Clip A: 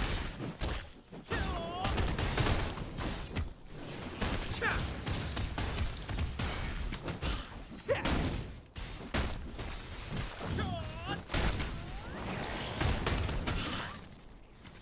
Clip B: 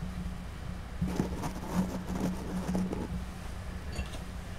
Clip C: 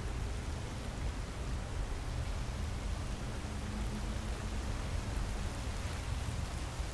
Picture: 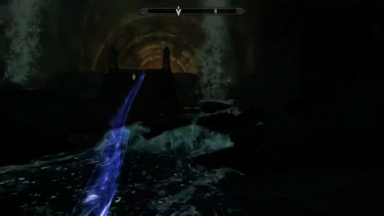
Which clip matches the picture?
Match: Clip C